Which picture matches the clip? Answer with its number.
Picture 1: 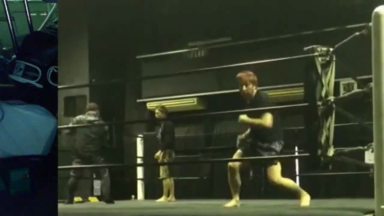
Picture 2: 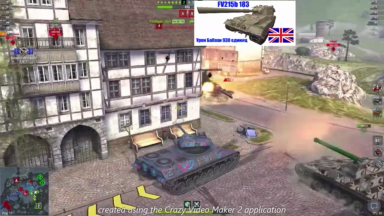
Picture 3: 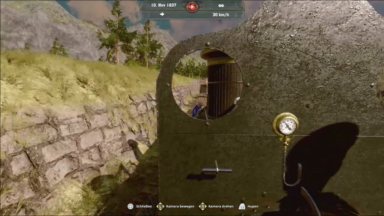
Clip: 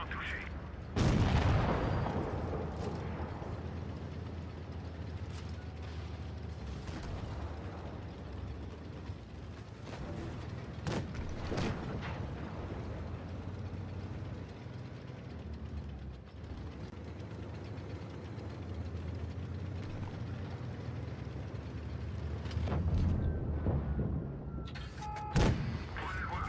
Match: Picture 2